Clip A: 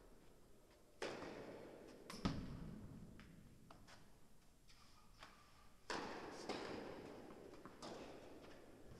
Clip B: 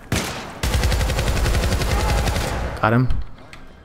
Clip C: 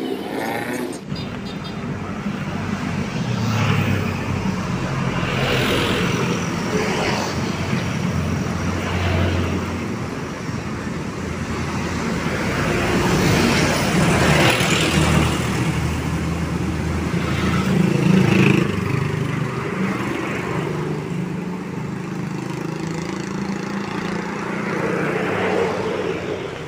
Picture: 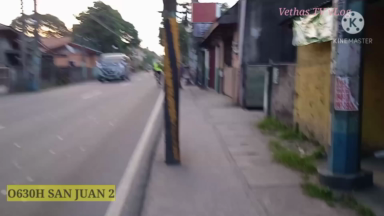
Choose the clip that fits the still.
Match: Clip C